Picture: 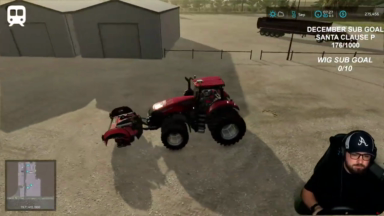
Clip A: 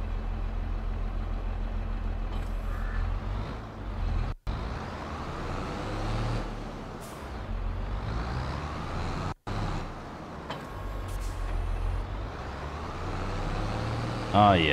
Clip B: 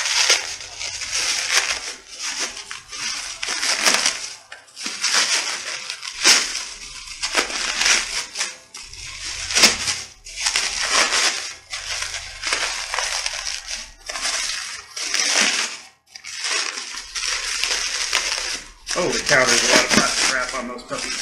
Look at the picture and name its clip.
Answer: A